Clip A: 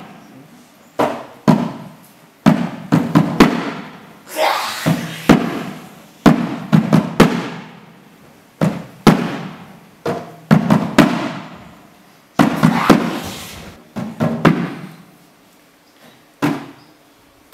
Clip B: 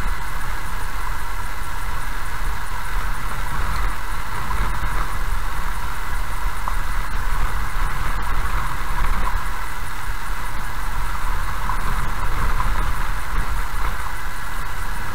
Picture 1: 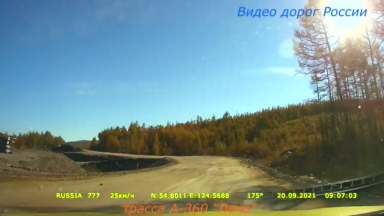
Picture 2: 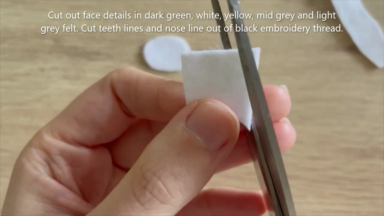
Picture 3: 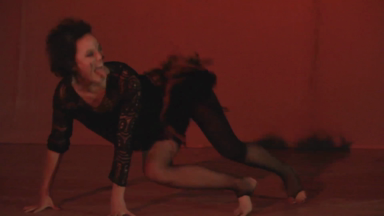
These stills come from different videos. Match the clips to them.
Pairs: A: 3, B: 1